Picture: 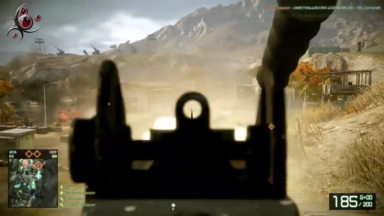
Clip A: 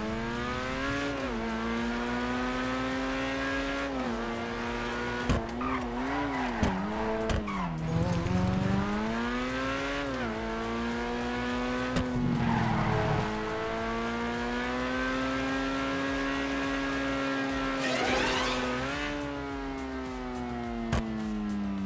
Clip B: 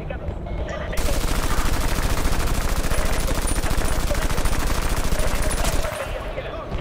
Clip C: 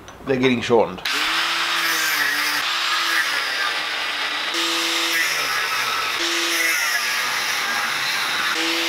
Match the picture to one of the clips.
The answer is B